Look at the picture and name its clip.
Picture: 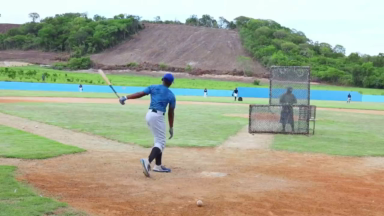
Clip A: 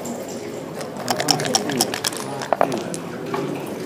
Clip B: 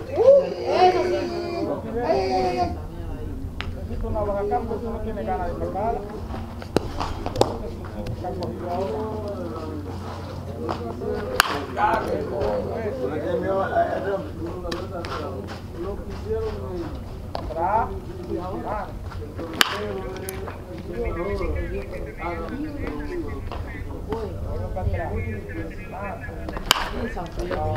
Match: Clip B